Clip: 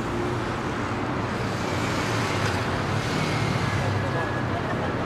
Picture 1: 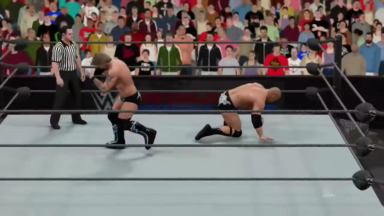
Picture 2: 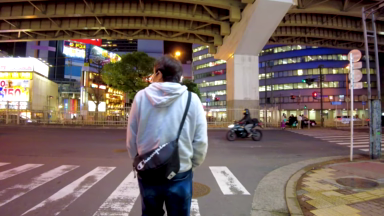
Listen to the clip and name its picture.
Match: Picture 2